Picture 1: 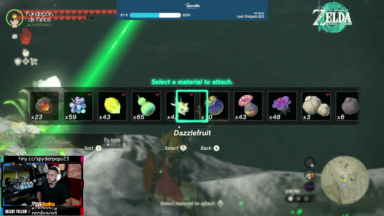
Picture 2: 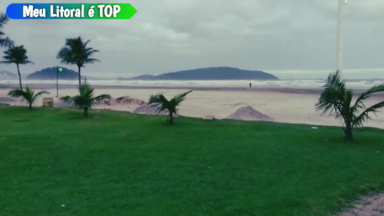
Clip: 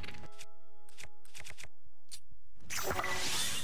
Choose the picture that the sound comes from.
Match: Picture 1